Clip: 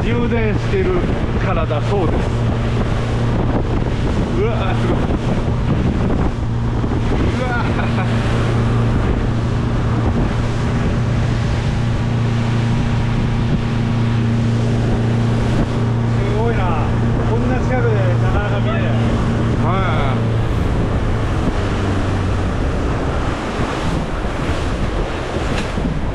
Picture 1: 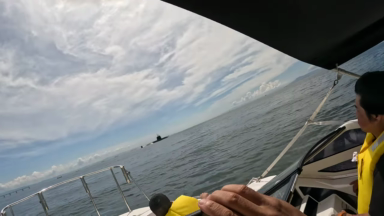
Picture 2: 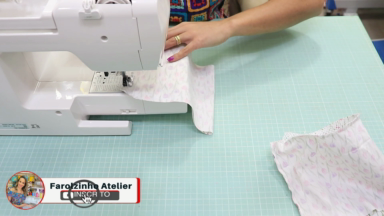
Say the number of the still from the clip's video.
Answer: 1